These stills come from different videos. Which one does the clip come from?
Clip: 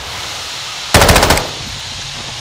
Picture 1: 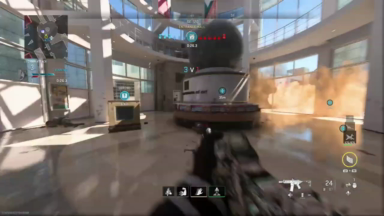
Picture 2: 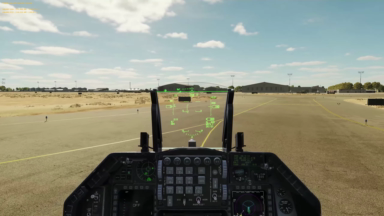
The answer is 1